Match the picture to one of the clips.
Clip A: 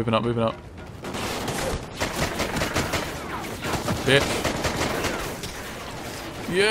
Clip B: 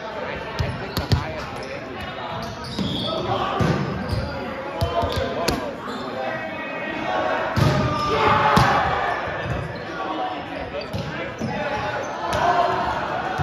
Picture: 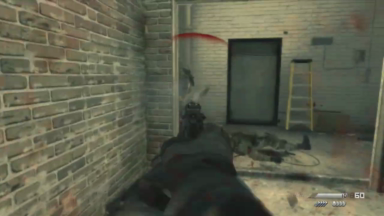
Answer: A